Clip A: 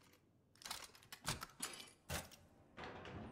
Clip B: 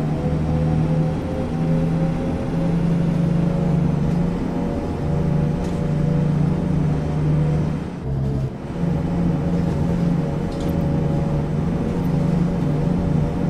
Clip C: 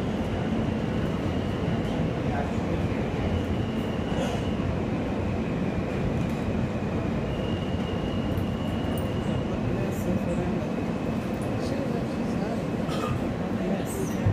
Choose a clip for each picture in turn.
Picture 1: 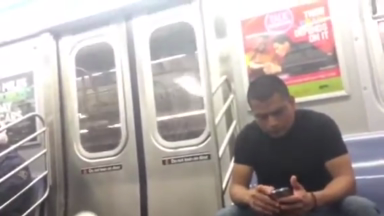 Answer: C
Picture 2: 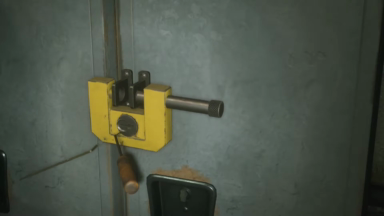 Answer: A